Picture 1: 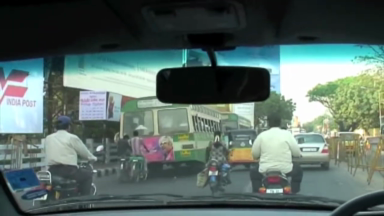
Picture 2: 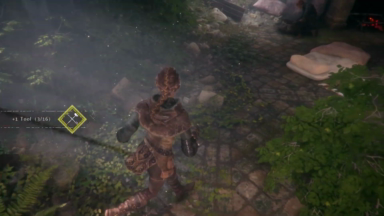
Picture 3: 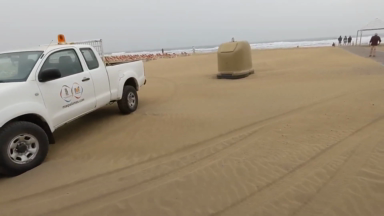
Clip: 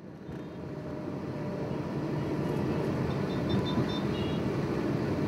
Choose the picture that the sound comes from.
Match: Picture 1